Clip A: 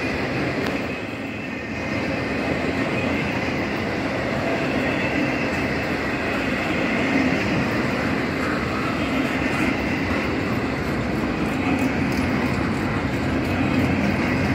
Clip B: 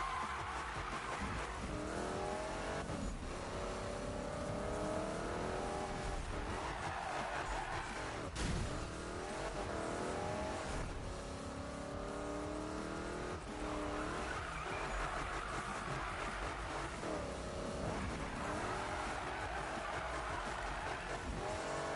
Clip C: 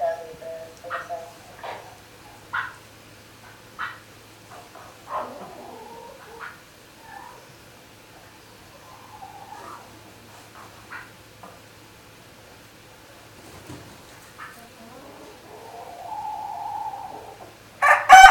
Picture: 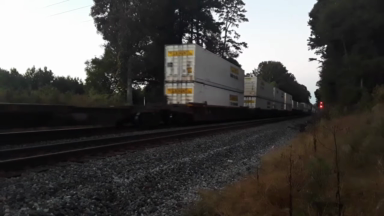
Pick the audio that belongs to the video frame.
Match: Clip A